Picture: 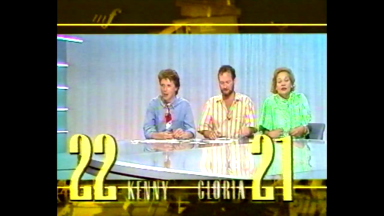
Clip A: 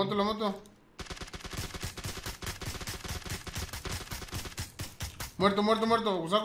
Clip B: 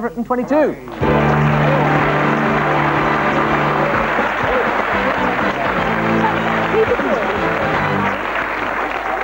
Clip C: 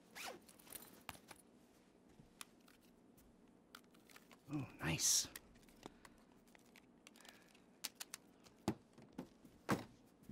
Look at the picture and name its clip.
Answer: B